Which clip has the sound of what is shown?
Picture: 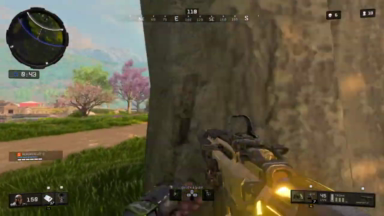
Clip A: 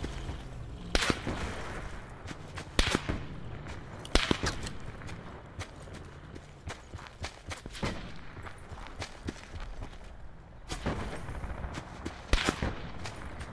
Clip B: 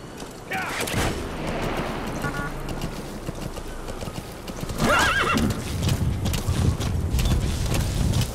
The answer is A